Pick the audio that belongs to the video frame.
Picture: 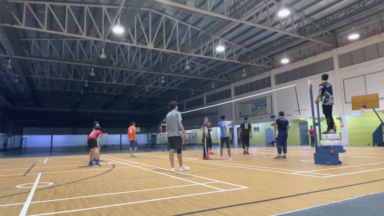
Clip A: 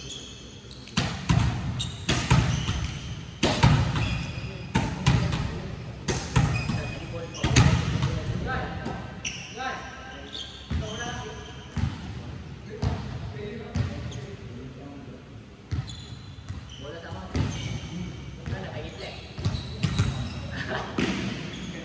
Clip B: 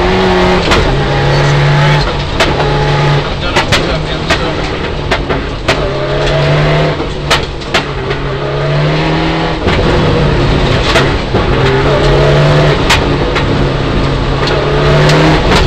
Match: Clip A